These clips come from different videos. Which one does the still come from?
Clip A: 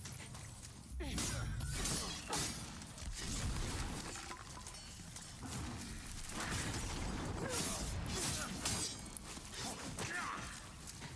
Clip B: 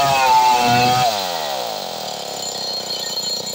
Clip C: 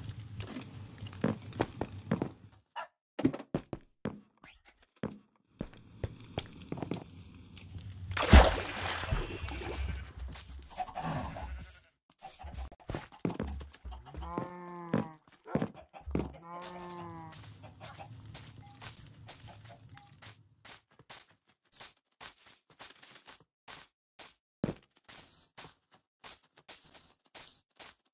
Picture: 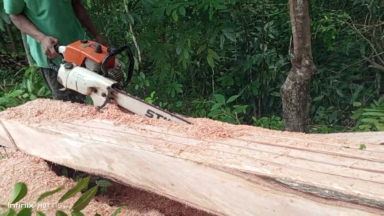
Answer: B